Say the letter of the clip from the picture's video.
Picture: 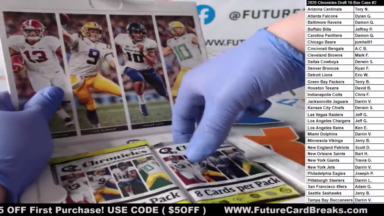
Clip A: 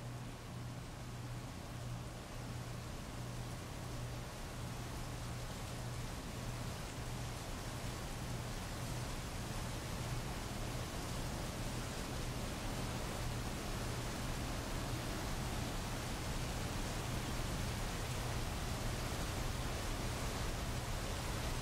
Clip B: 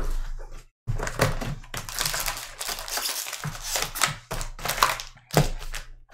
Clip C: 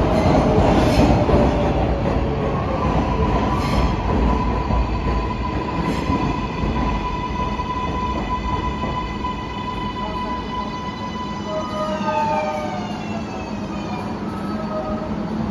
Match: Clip B